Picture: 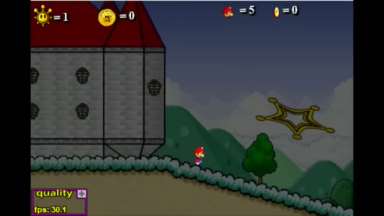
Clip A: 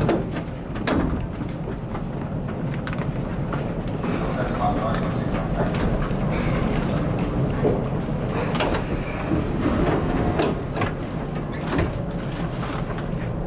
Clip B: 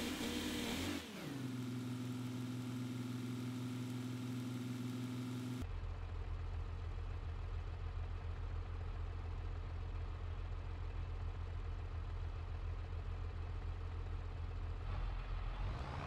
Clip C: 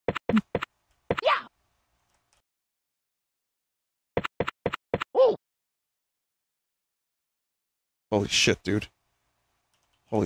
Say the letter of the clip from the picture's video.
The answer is C